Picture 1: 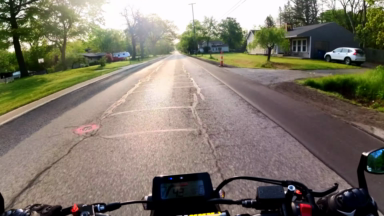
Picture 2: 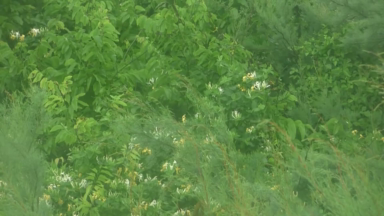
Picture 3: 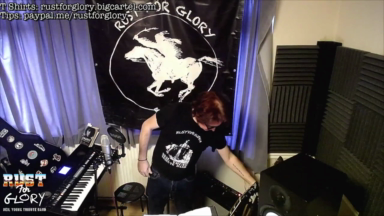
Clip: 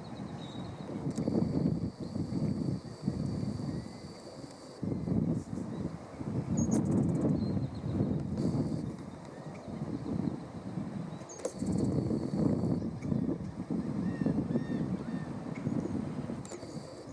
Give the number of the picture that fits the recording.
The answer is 2